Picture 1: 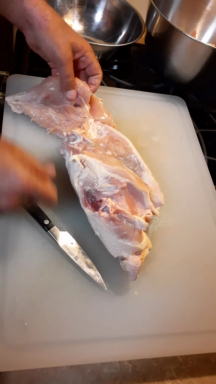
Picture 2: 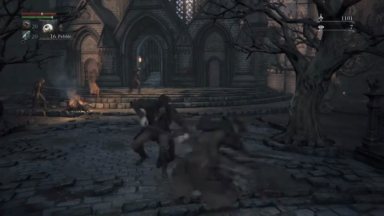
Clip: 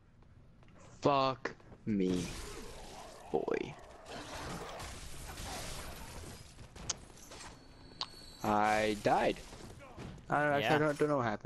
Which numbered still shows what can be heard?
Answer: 2